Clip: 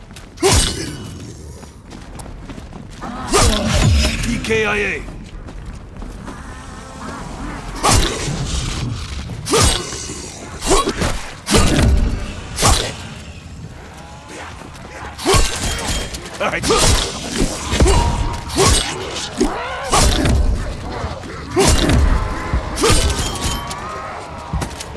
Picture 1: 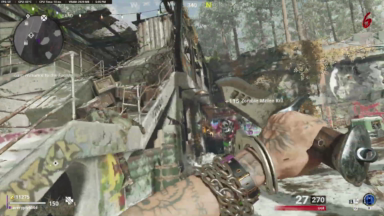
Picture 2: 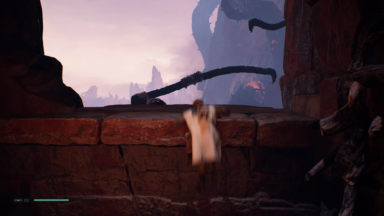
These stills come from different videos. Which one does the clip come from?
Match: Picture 1